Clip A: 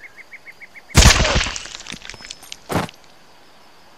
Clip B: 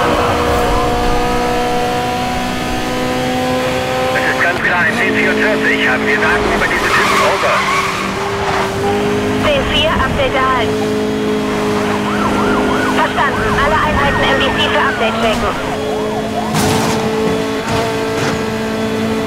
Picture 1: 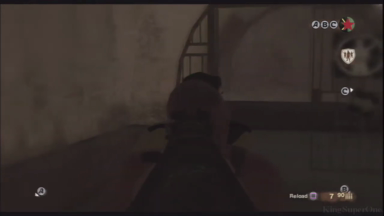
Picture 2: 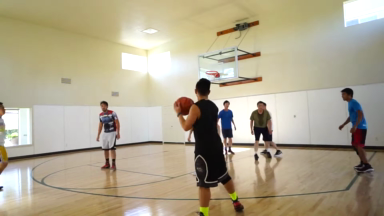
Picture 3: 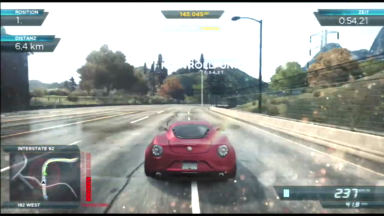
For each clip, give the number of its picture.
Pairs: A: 1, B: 3